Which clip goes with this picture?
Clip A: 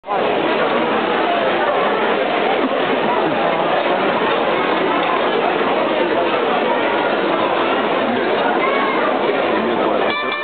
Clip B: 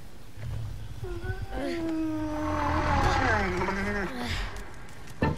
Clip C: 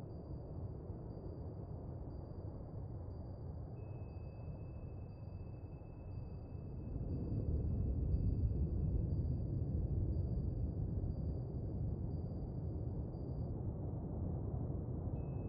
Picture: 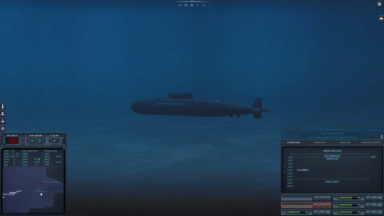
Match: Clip C